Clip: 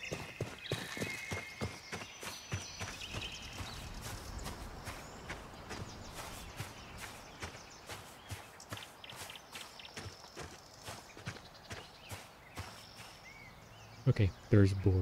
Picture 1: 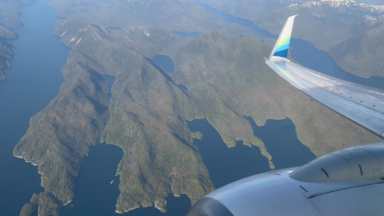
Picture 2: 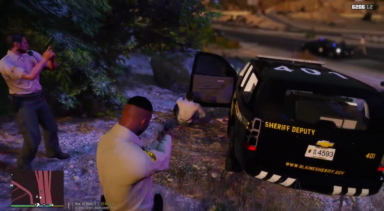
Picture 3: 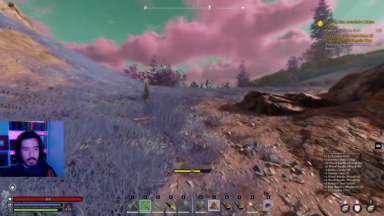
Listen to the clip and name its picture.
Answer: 3